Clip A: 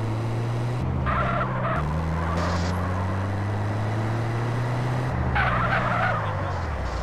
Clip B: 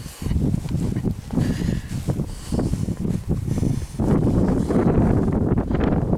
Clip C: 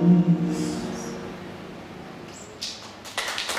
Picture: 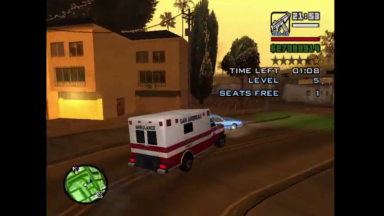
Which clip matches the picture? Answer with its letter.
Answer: A